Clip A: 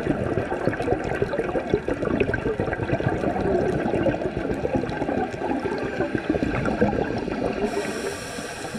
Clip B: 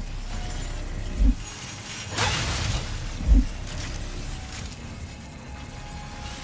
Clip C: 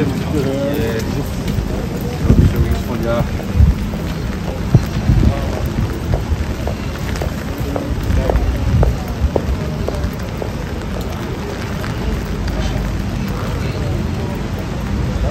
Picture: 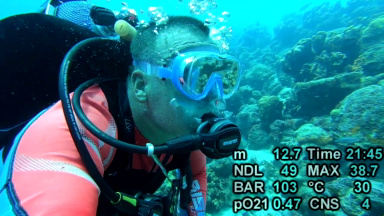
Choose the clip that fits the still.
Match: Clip A